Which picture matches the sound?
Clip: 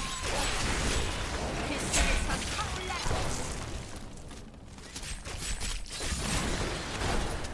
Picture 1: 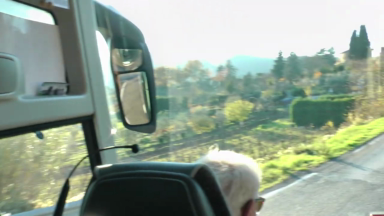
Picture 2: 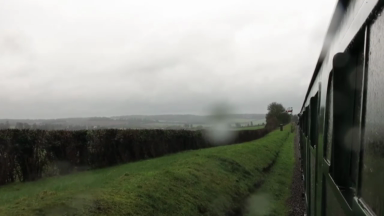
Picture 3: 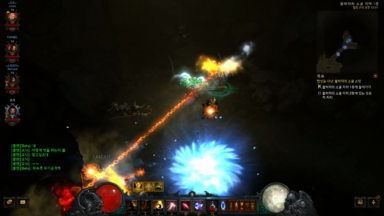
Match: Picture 3